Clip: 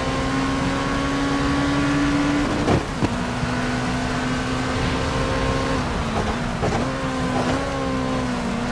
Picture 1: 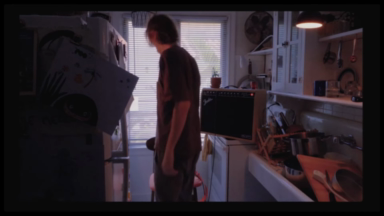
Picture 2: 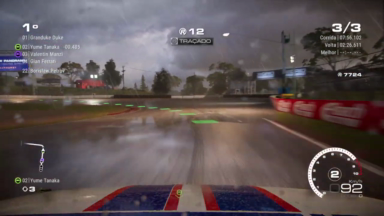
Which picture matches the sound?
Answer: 2